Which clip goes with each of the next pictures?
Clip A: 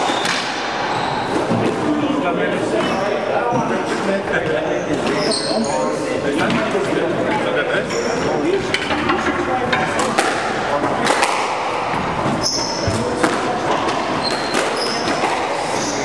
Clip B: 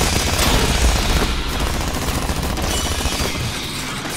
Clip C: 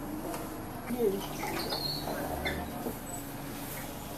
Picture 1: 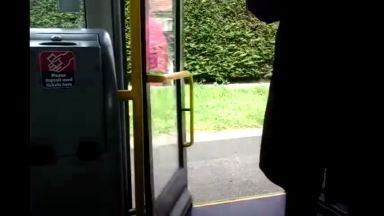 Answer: C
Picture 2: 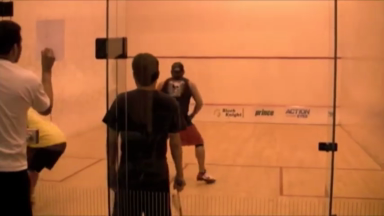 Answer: A